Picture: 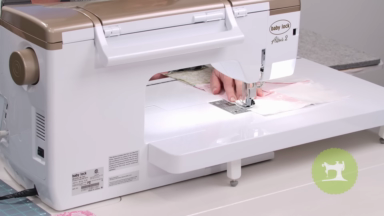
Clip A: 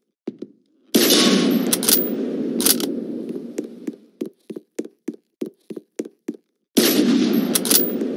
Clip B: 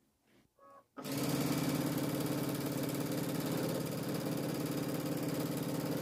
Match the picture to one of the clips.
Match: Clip B